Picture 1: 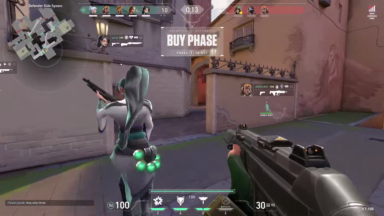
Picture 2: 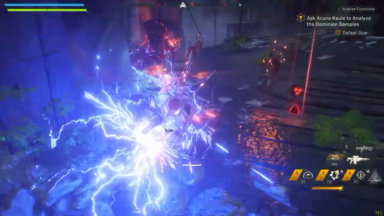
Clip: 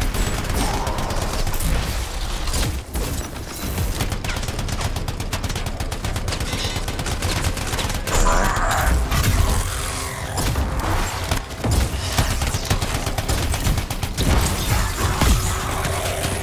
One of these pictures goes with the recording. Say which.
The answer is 2